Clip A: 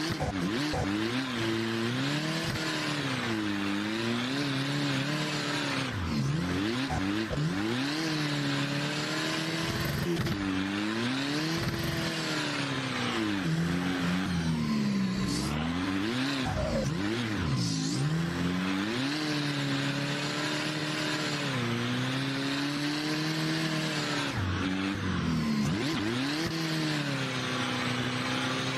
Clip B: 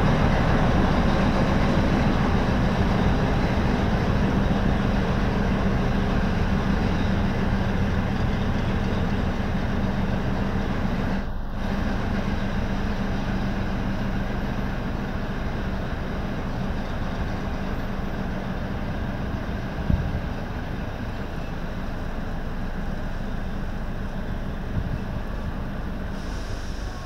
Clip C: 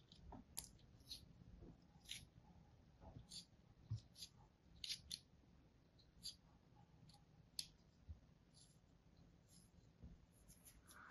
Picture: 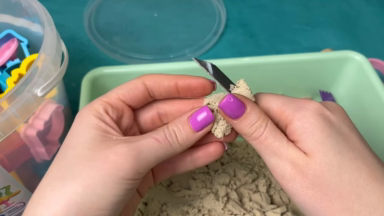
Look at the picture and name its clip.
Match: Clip C